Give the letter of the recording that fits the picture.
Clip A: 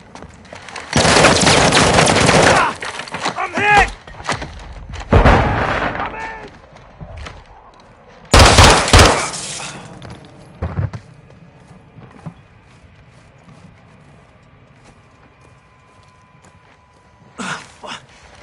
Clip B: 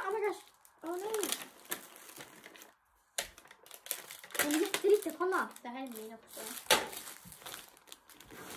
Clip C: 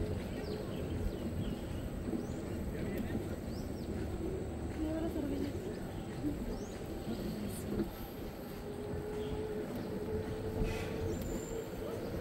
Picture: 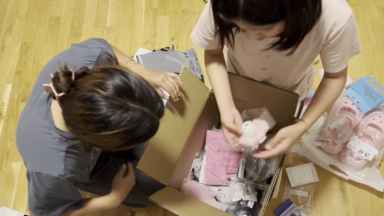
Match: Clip B